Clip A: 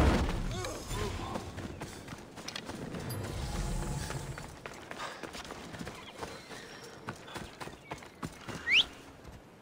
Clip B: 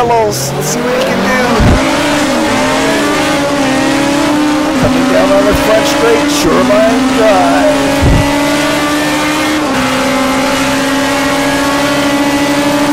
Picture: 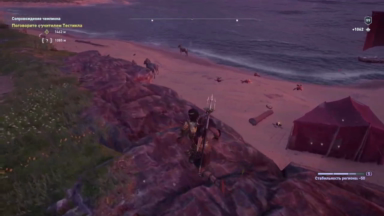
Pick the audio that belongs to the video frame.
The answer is A